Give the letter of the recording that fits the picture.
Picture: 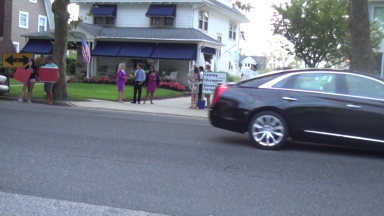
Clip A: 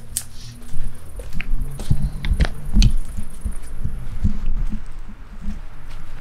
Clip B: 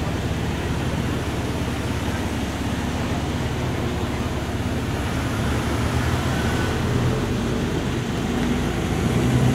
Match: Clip B